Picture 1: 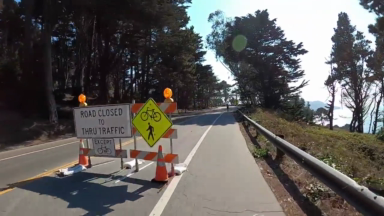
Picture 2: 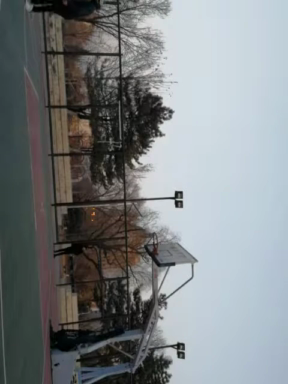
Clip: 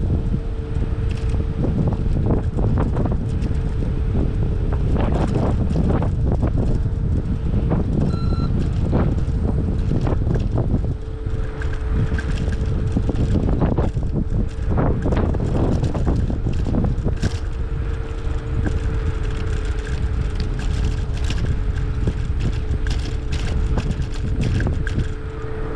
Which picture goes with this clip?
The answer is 1